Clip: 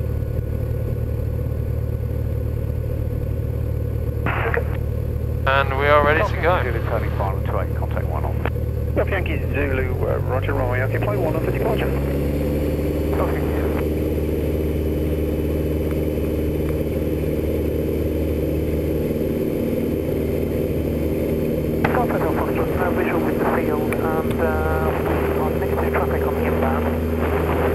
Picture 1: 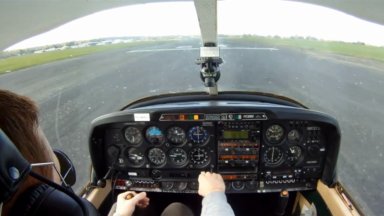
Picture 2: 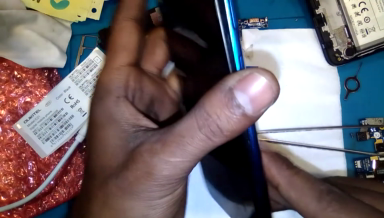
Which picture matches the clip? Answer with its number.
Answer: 1